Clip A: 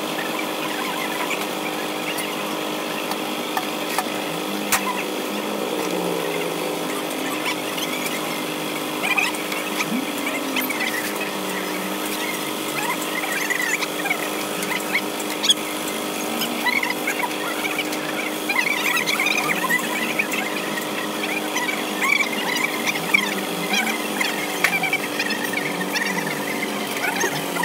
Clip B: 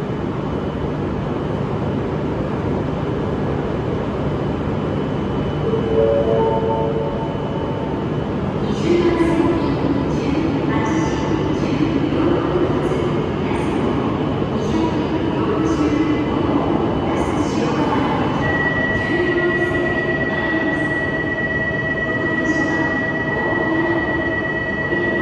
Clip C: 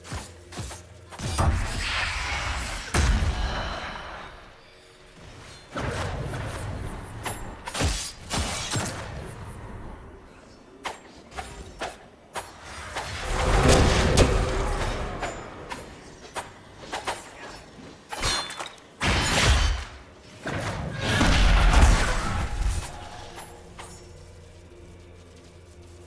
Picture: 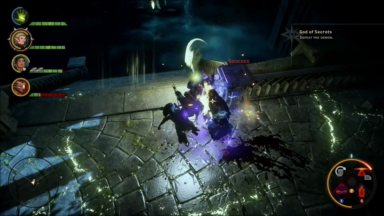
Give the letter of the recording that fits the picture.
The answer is C